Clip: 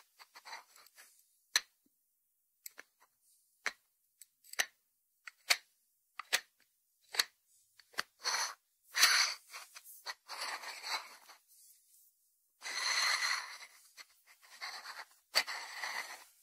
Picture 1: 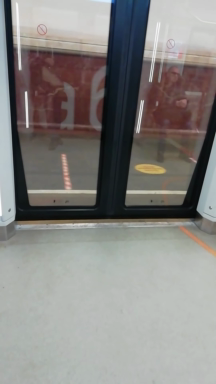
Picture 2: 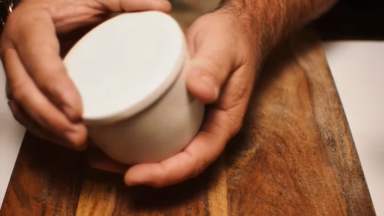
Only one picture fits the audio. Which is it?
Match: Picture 2